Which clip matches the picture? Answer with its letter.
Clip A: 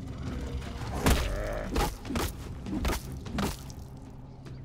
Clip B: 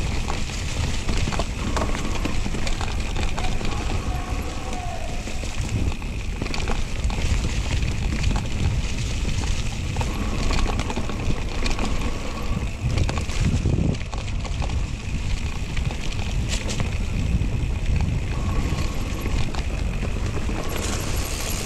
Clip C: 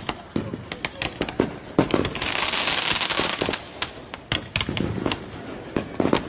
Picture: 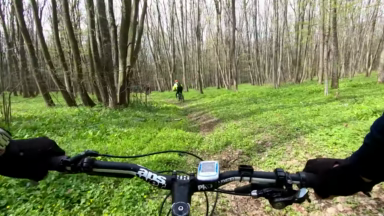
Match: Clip B